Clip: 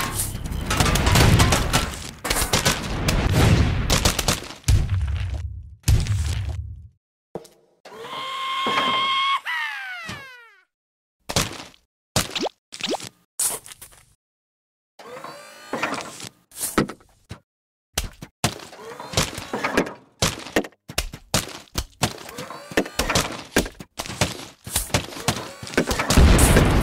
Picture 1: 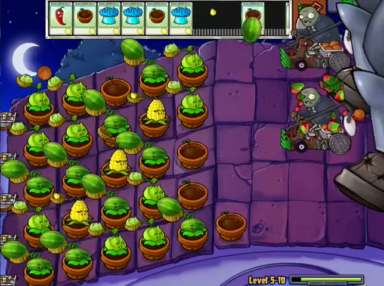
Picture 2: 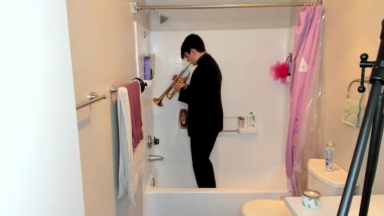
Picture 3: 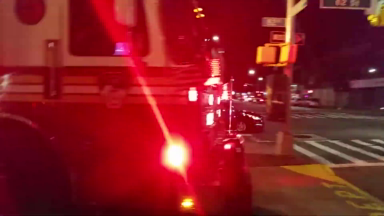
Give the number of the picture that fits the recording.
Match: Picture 1